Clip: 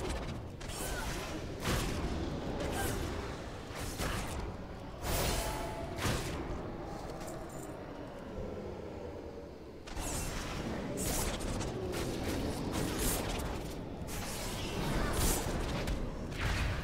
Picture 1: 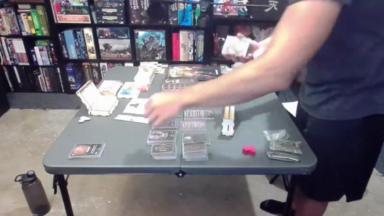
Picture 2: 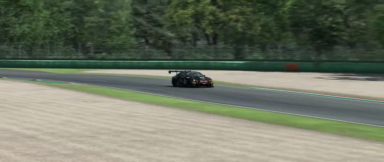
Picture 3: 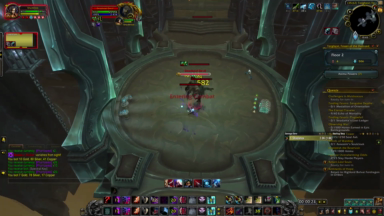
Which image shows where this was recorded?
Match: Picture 3